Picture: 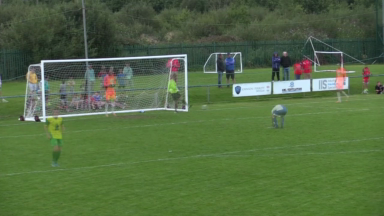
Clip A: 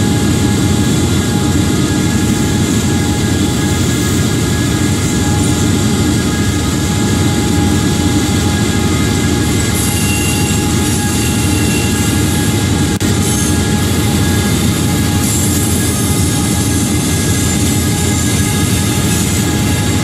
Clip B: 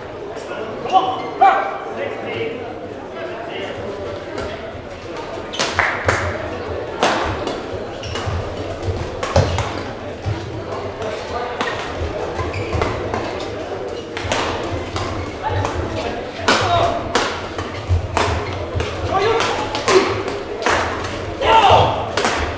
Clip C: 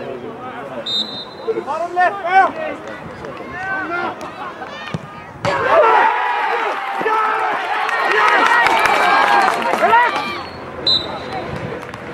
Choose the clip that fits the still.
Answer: C